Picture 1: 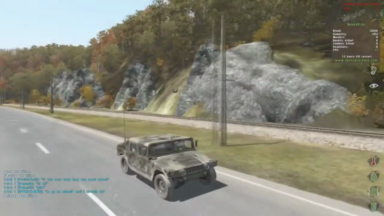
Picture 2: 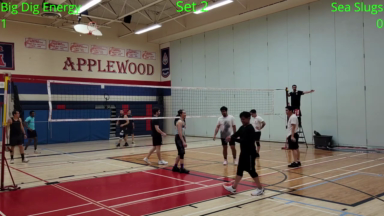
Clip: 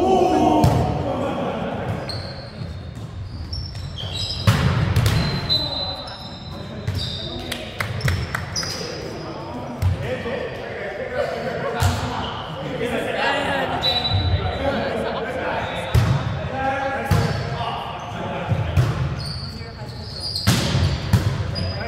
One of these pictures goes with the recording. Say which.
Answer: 2